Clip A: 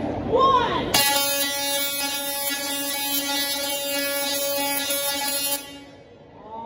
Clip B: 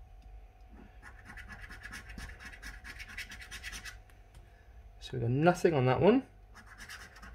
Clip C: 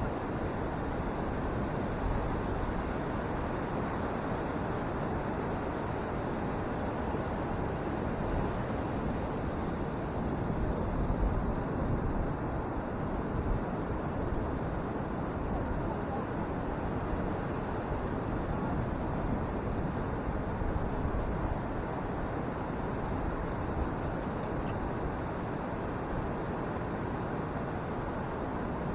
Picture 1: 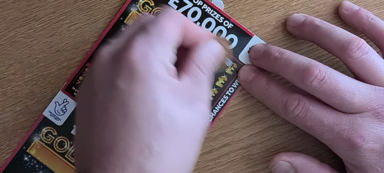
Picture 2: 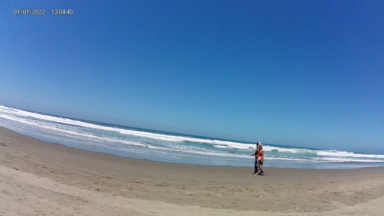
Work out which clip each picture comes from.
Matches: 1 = B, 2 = C